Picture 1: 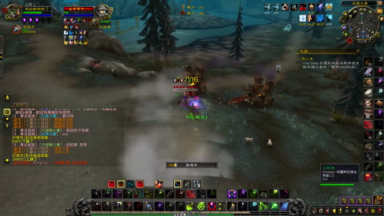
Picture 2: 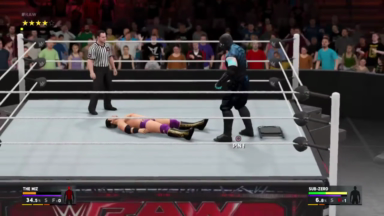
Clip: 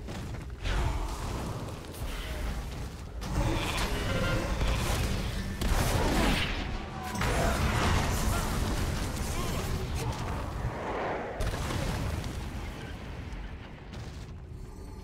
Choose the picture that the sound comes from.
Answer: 1